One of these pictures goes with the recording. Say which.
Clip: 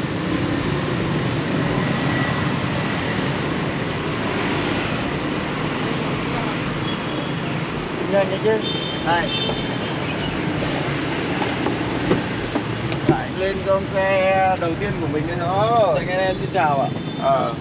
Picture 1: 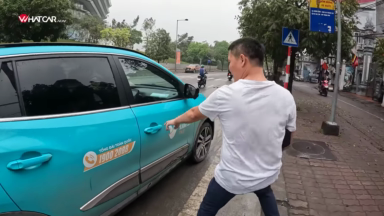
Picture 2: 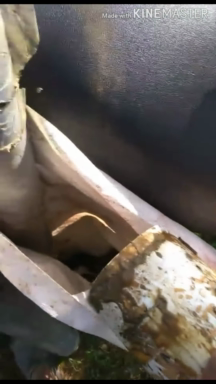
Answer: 1